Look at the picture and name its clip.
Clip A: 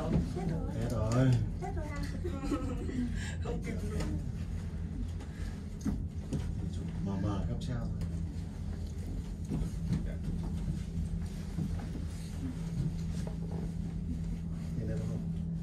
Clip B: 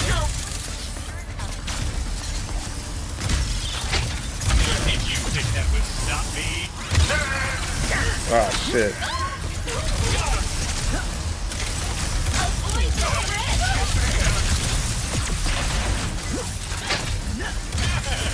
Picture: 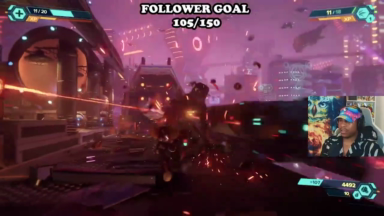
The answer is B